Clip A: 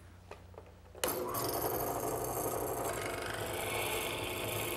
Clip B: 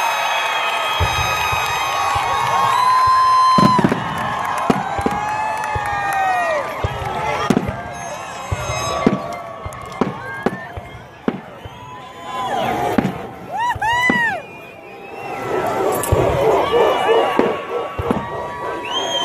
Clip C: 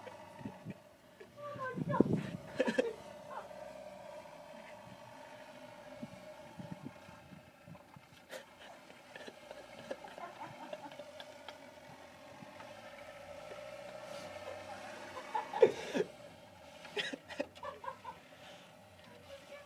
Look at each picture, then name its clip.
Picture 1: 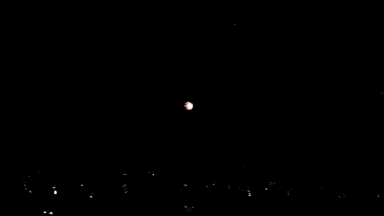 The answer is B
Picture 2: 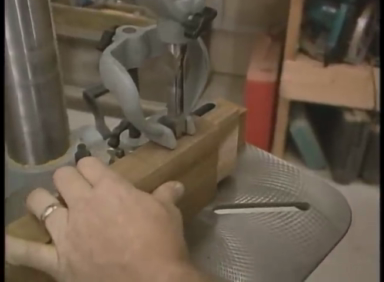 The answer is A